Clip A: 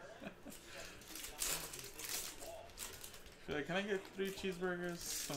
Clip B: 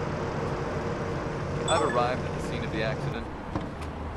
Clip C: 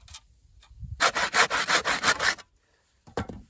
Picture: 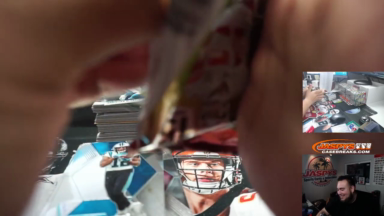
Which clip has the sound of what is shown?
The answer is A